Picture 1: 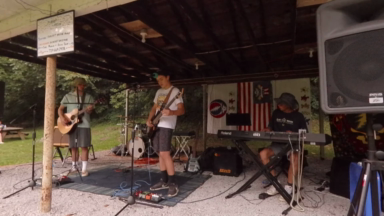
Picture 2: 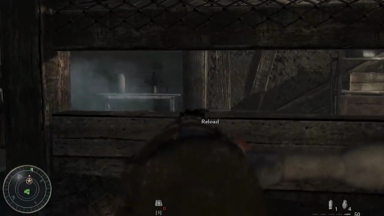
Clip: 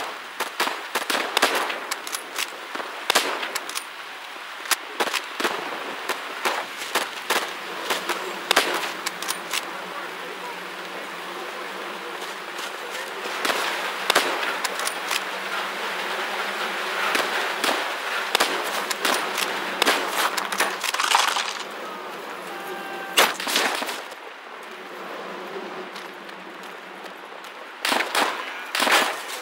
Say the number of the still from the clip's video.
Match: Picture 2